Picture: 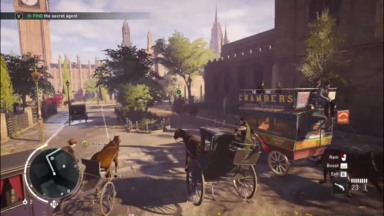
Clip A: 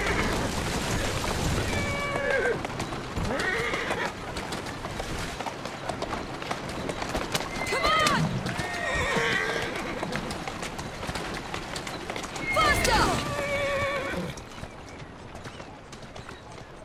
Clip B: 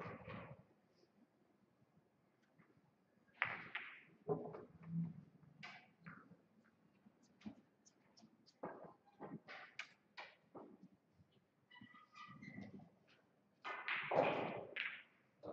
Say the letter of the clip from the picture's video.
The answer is A